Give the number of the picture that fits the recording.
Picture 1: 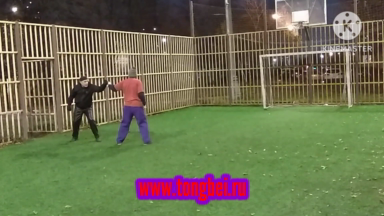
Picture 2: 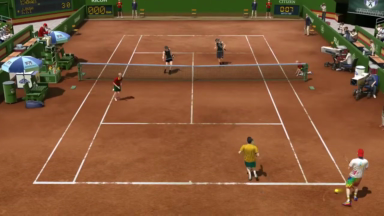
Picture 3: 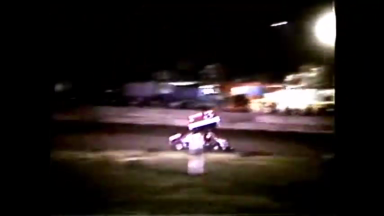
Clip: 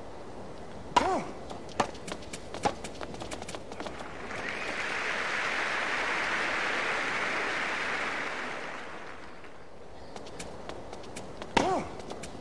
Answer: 2